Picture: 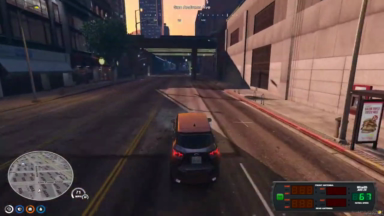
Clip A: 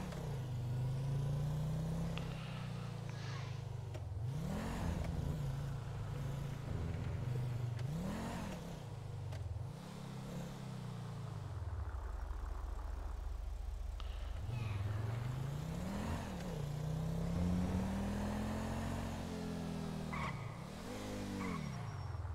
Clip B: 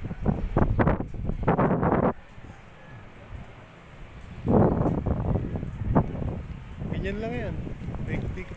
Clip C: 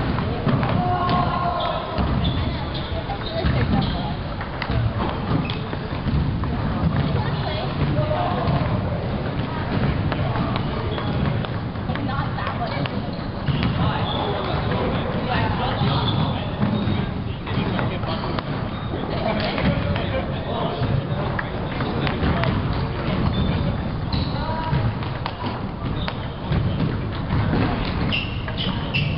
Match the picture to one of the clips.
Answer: A